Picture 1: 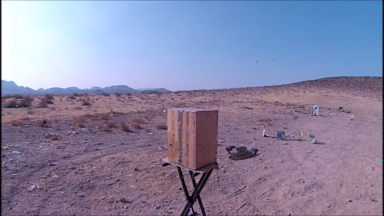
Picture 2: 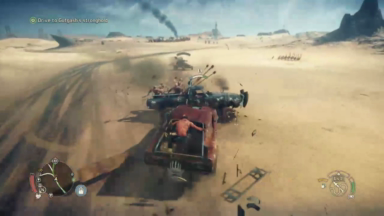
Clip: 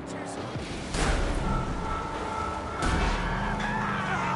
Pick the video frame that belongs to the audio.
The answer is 2